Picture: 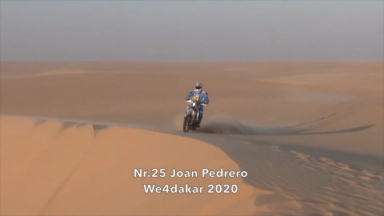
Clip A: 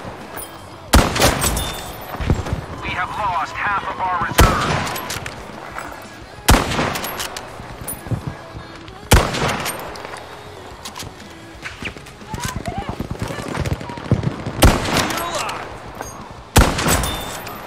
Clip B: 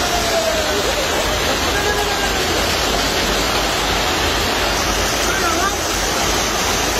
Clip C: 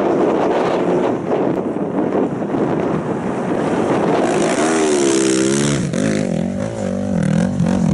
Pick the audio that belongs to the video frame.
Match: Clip C